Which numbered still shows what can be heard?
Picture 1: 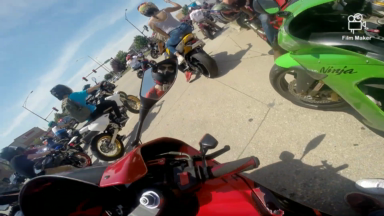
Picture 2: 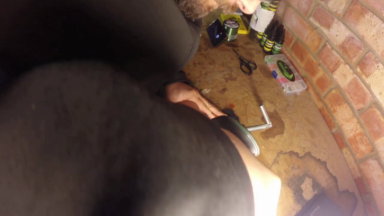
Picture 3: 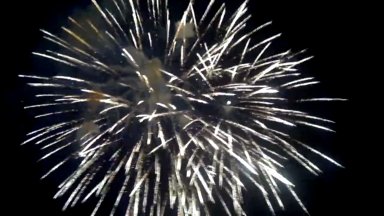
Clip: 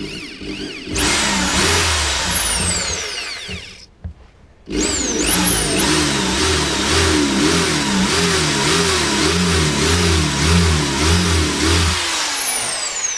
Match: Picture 2